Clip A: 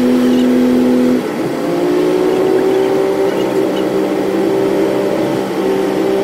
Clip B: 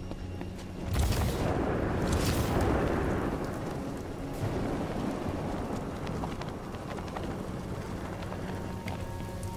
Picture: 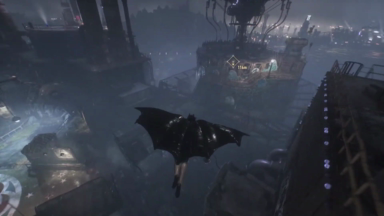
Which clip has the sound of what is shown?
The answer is B